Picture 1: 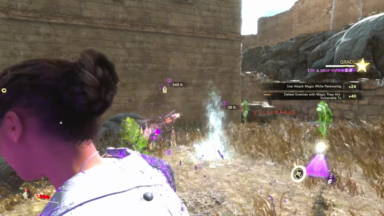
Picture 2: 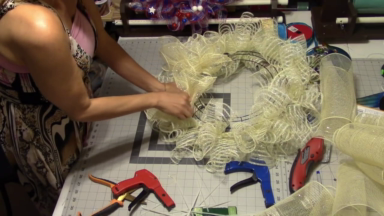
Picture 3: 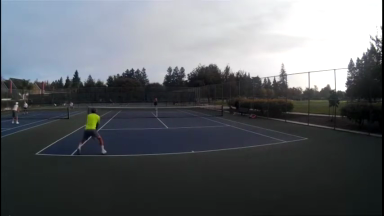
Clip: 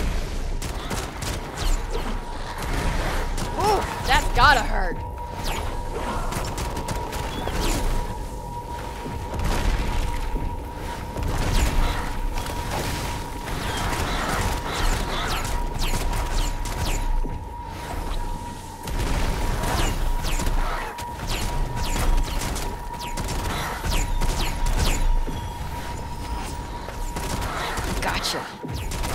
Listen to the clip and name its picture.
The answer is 1